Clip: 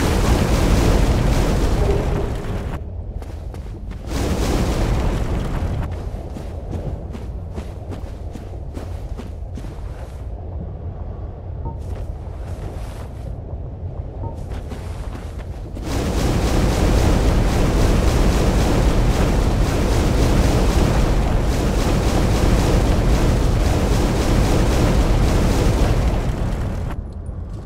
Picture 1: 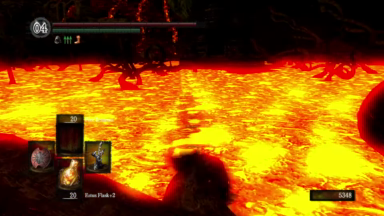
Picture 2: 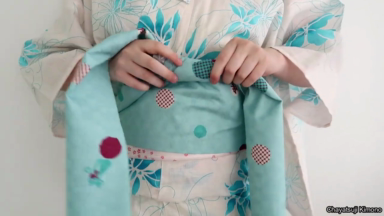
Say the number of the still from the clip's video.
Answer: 1